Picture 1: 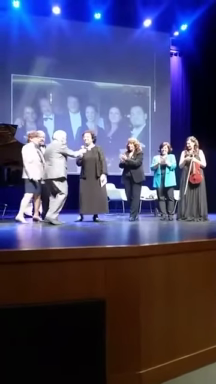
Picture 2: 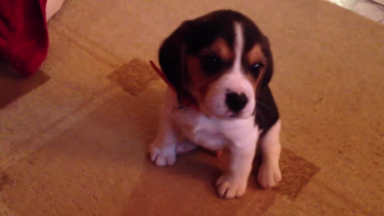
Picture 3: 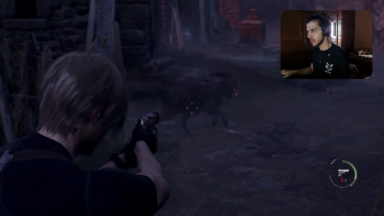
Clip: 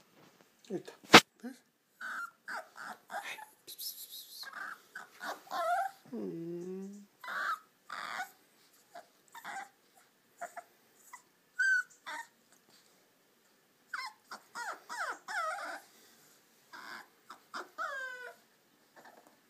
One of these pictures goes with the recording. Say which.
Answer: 2